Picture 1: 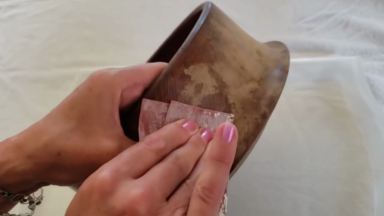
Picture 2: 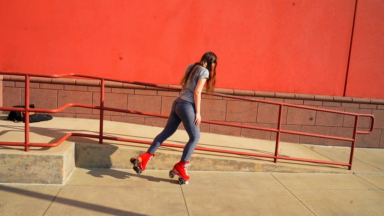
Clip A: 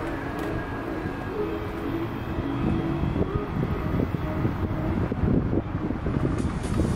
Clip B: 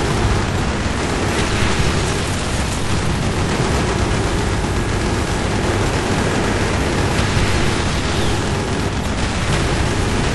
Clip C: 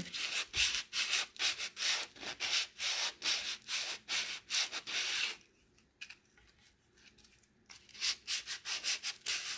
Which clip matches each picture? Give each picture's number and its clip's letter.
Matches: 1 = C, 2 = A